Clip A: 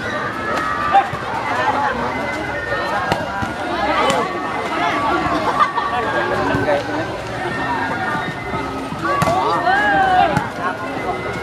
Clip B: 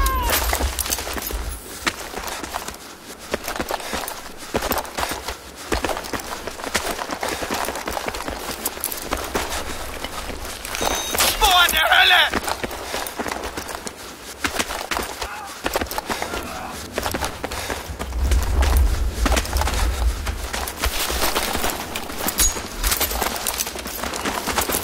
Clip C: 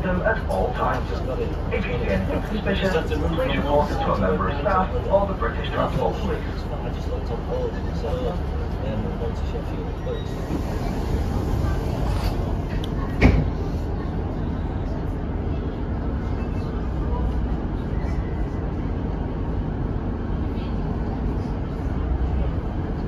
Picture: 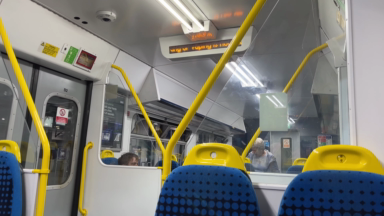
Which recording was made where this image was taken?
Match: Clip C